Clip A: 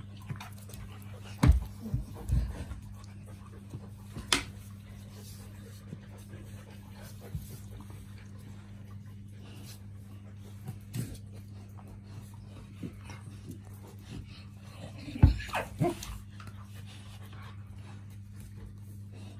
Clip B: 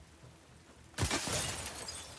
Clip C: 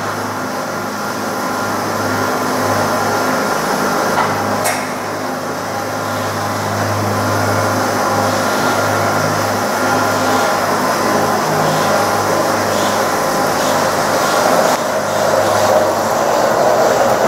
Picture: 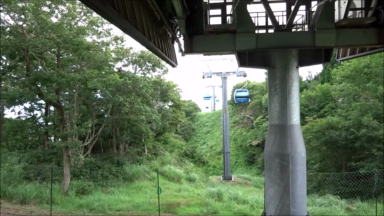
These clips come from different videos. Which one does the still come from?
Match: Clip C